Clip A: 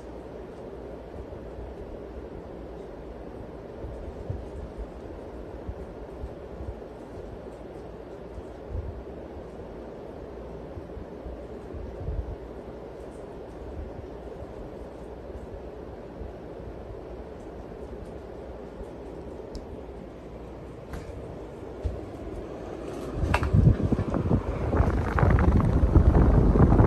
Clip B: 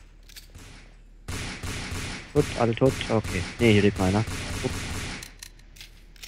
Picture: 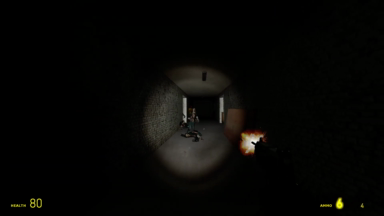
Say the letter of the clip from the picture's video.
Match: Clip B